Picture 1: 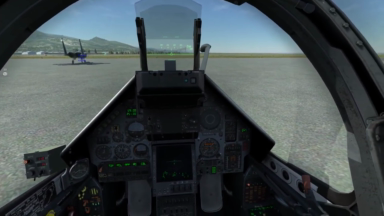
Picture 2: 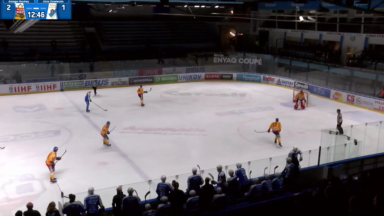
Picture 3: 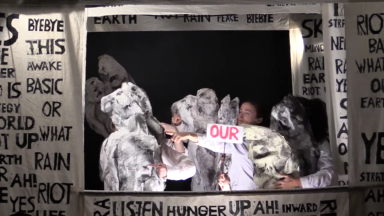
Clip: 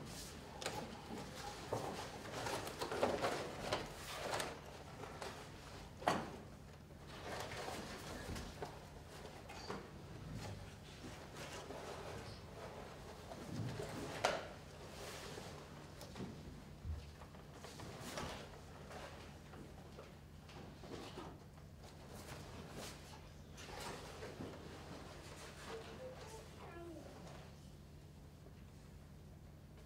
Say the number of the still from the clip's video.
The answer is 3